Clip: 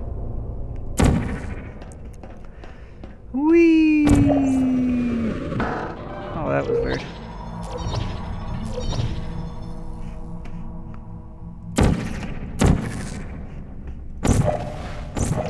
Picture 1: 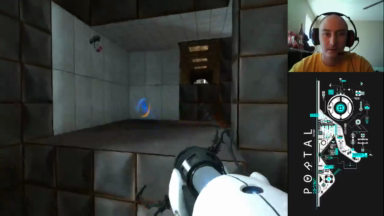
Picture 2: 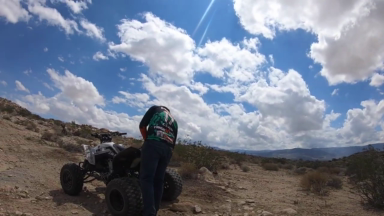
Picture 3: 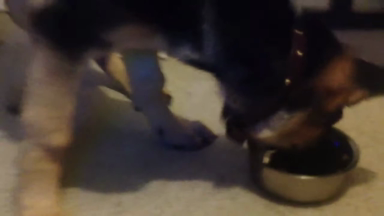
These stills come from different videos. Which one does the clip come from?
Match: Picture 1